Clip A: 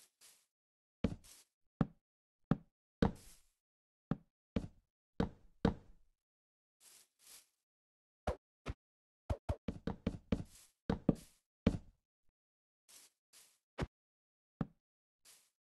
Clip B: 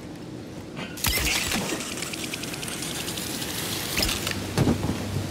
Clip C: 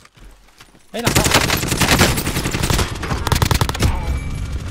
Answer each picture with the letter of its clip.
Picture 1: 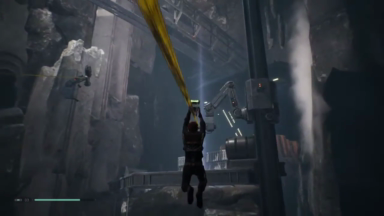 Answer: B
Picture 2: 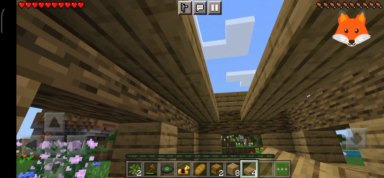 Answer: A